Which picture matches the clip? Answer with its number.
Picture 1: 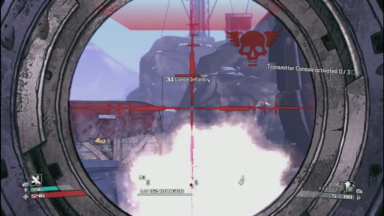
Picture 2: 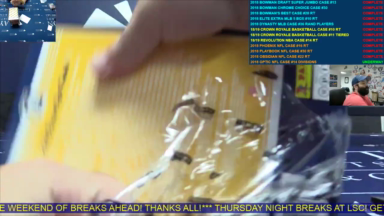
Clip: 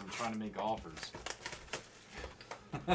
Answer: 2